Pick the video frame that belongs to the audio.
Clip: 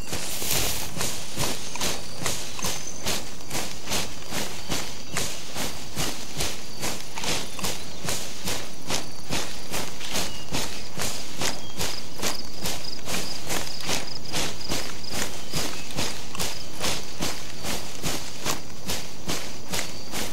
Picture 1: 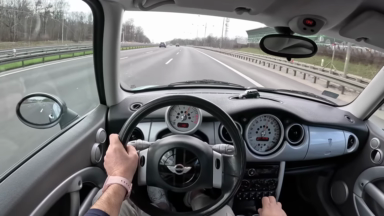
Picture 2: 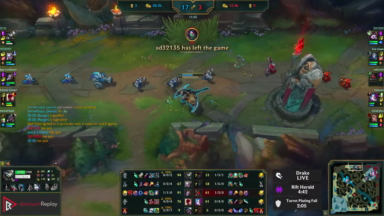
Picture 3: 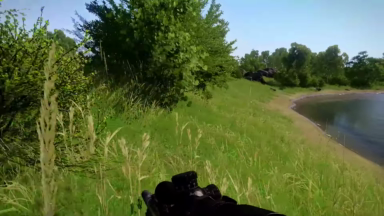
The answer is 3